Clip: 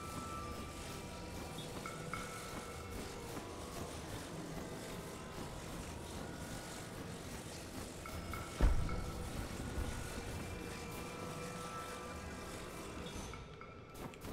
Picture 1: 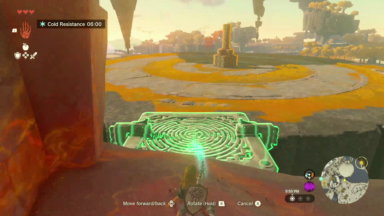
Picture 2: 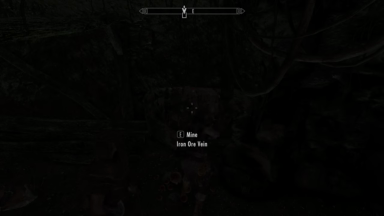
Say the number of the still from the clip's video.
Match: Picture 1